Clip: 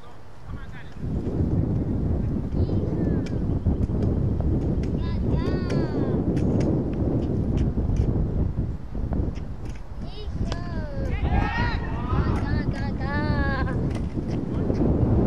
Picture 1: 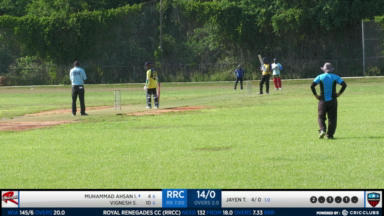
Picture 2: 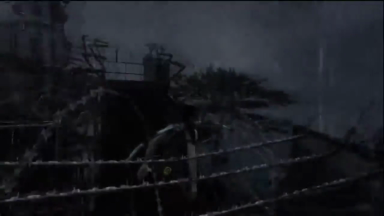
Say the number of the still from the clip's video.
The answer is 1